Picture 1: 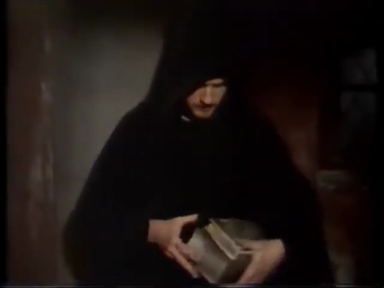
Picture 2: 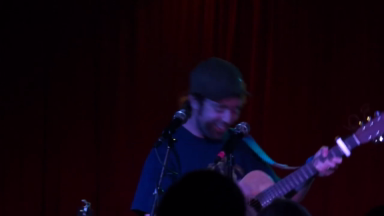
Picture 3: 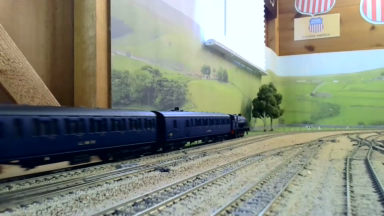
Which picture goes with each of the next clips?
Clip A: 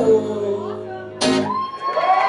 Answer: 2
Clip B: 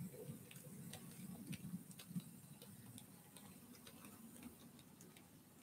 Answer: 3